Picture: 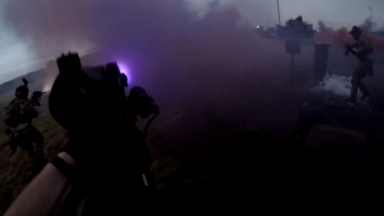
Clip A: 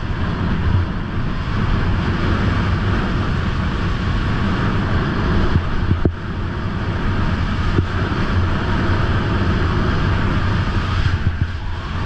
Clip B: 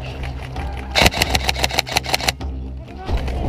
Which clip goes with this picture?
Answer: B